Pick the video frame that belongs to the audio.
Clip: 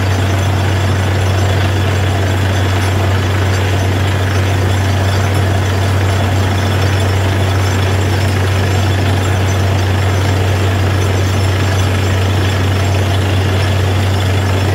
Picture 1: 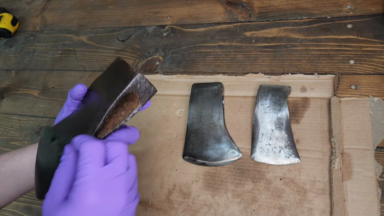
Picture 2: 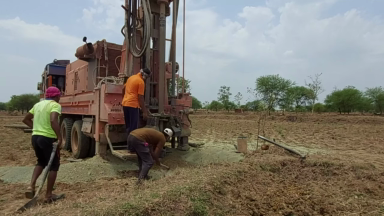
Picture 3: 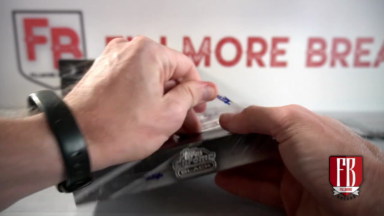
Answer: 2